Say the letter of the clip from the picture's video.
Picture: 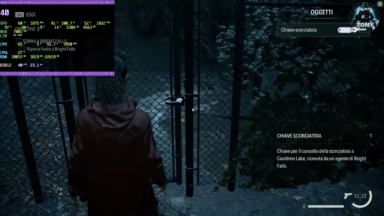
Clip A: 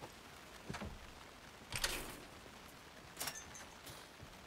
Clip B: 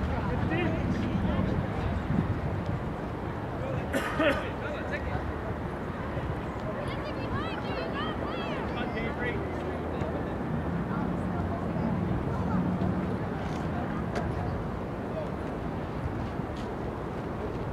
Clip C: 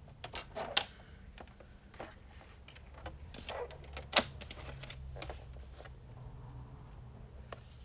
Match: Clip A